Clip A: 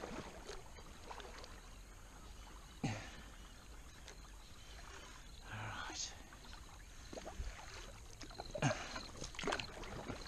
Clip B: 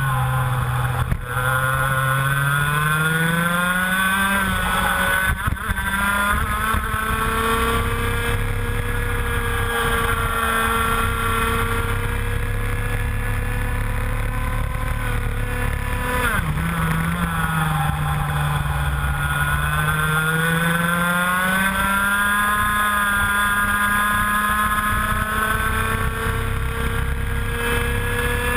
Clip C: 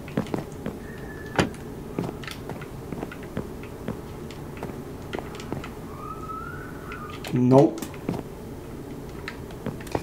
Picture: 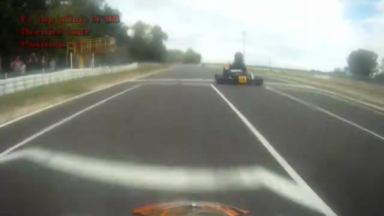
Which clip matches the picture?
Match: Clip B